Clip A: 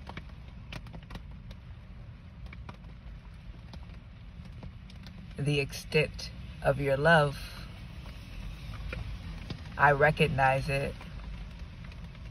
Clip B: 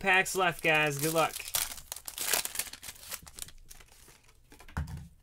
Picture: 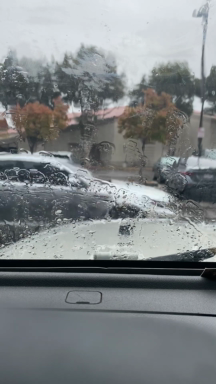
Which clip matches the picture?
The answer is A